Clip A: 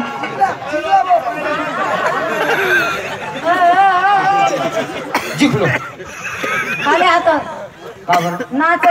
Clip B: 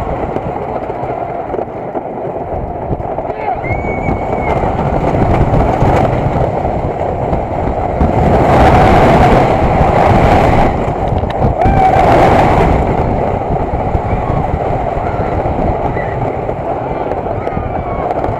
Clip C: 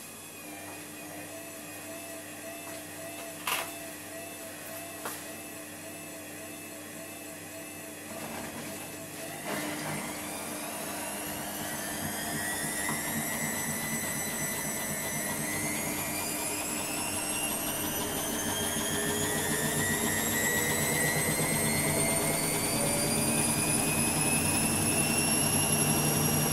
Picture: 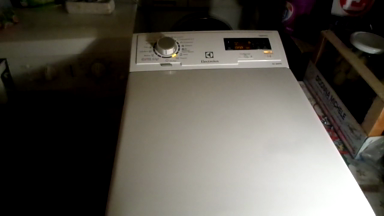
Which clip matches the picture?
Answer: C